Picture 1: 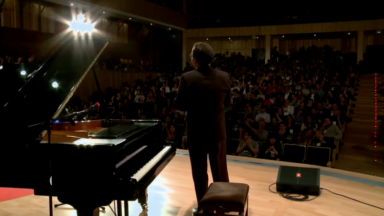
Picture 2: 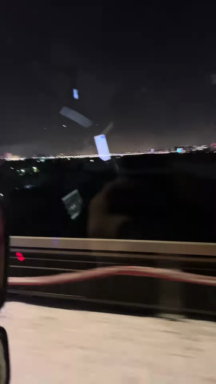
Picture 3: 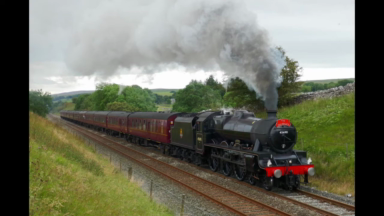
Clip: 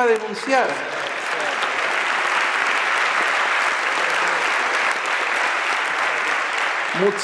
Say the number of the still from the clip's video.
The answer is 1